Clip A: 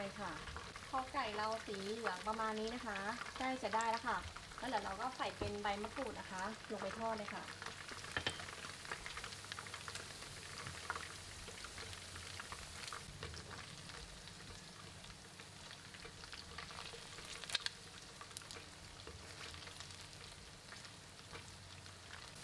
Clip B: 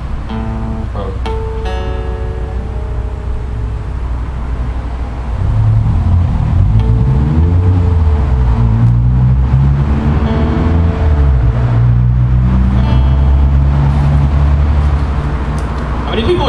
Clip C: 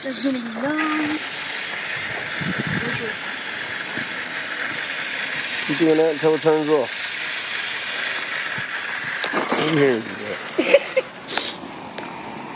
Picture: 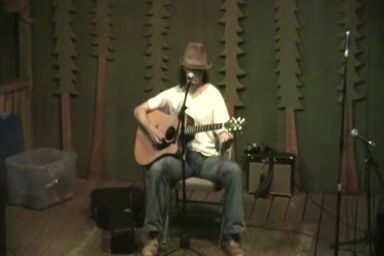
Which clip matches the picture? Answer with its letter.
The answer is B